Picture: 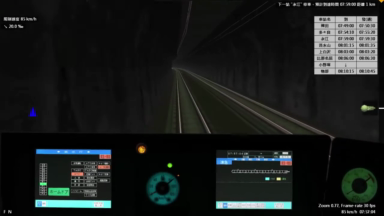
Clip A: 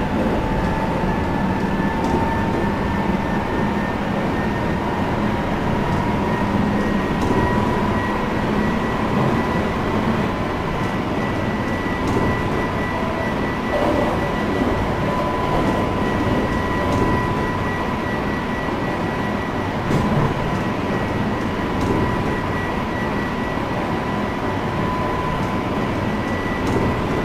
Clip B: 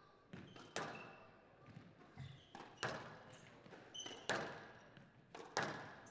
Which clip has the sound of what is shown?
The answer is A